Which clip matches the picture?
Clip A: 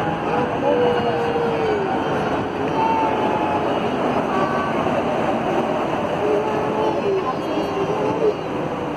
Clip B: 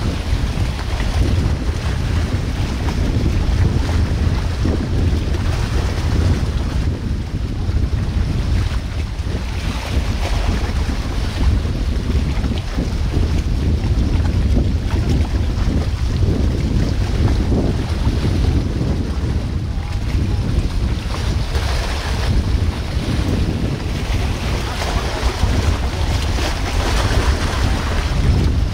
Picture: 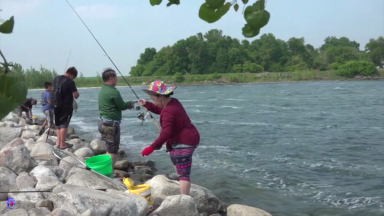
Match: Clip B